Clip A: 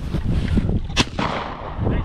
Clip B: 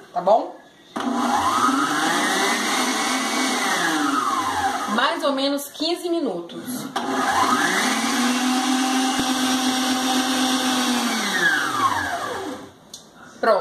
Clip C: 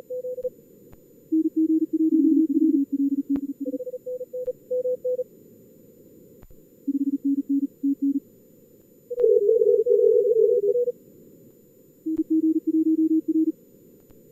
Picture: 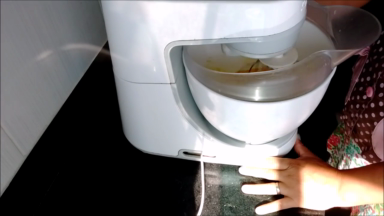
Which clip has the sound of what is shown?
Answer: B